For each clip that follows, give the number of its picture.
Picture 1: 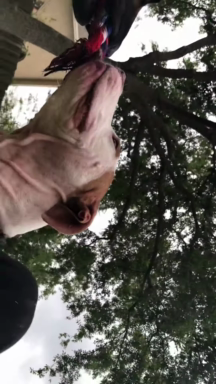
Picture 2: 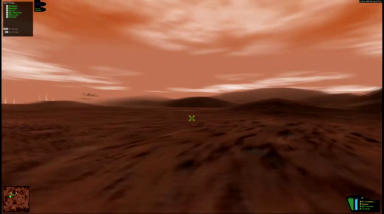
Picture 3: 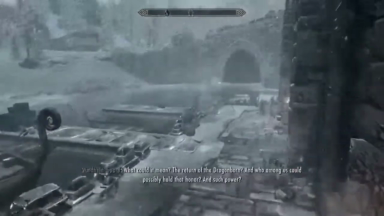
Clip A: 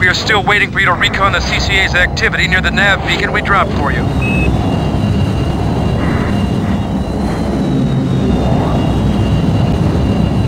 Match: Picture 2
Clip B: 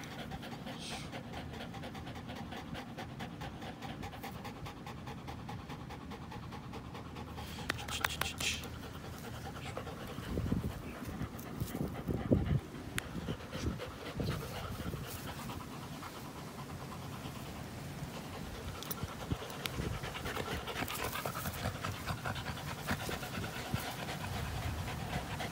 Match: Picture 1